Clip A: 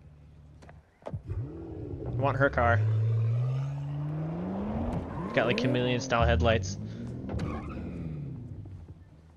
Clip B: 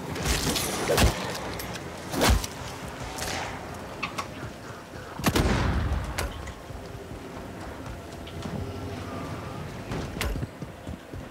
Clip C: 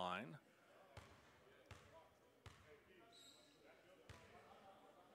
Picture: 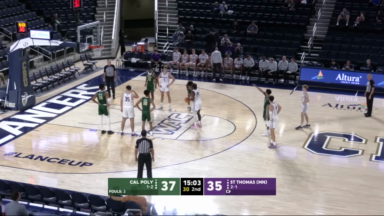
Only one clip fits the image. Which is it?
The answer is C